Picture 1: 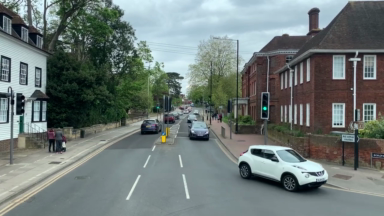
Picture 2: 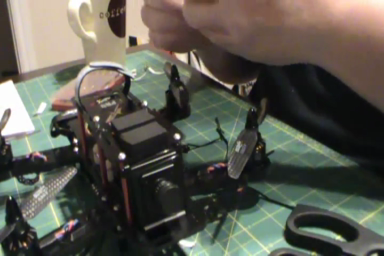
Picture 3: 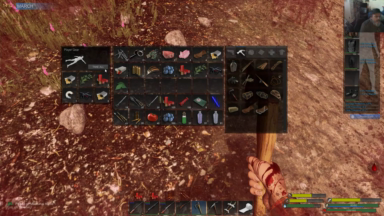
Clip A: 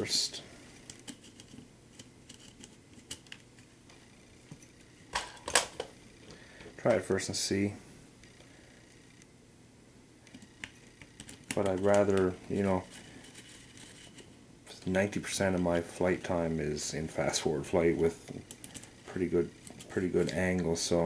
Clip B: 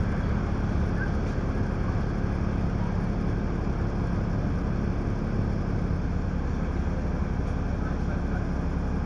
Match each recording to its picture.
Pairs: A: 2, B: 1